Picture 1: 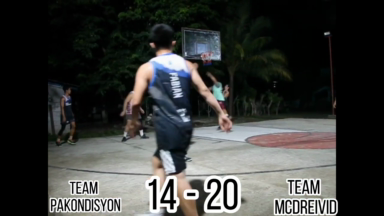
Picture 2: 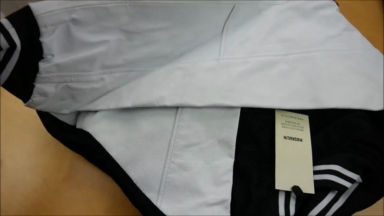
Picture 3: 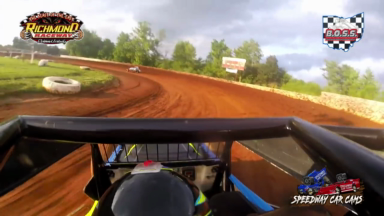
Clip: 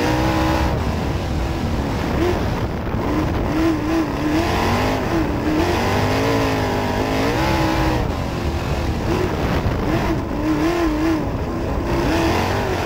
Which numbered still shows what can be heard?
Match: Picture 3